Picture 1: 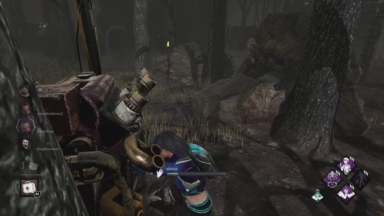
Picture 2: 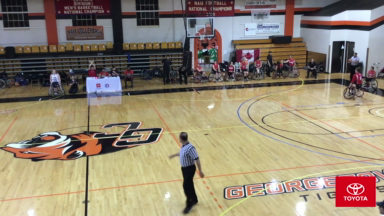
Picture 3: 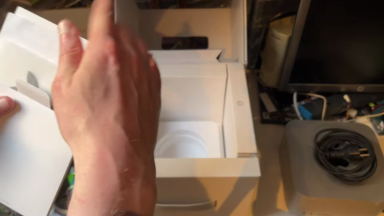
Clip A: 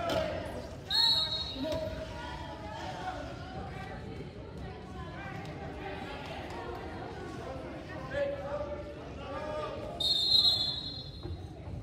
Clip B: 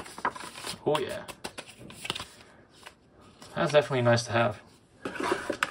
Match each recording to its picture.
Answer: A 2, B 3